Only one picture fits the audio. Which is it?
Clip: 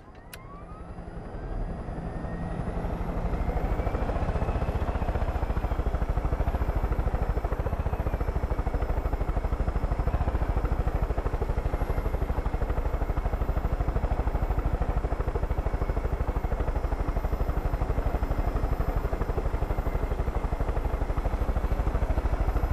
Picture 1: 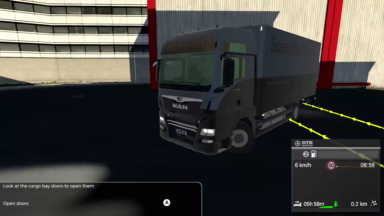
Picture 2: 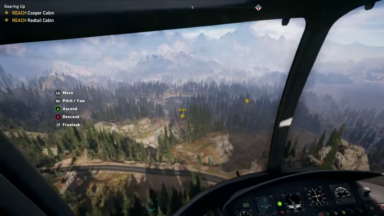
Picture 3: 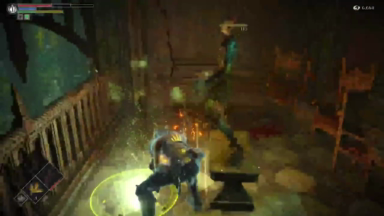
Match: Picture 2